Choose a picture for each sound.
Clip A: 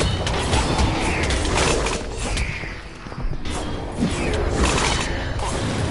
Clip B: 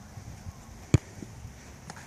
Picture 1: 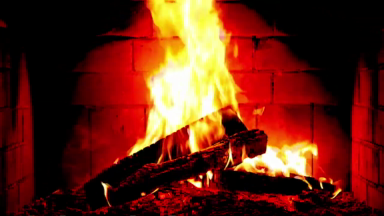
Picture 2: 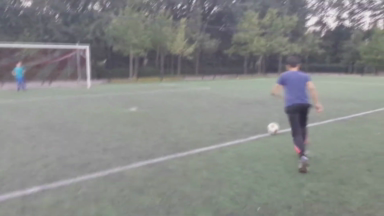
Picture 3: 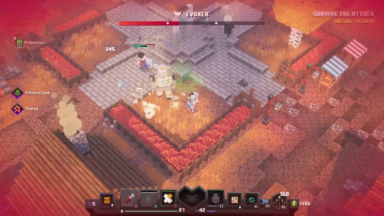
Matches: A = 3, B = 2